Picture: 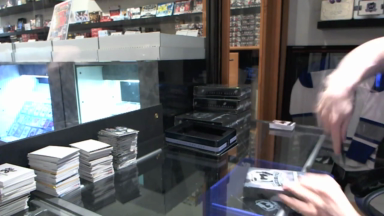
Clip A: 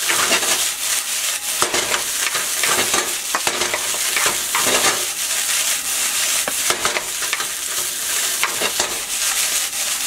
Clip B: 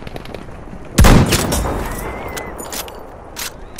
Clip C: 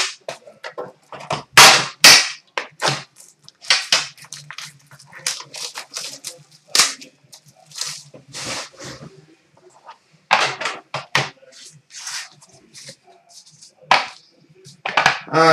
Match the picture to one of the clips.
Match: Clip C